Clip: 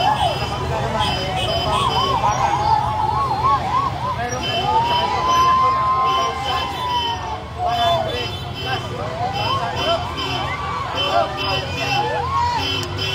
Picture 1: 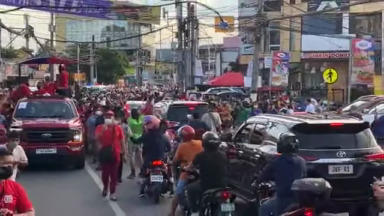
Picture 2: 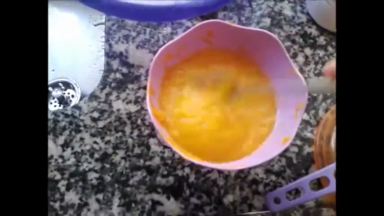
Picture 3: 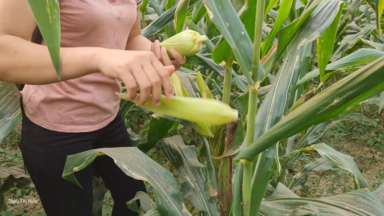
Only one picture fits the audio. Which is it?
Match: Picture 1